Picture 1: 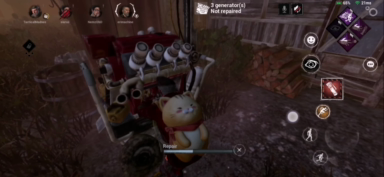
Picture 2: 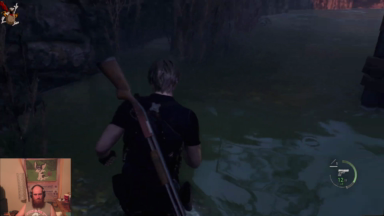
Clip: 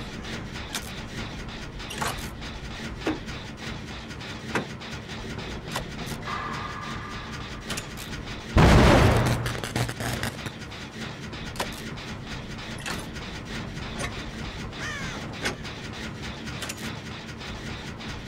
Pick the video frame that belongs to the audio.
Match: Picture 1